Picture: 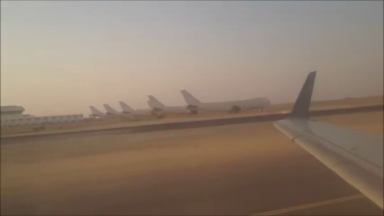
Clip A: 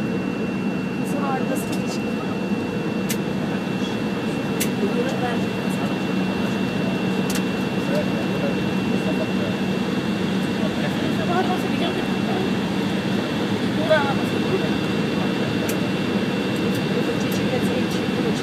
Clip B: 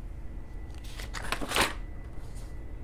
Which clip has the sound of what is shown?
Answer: A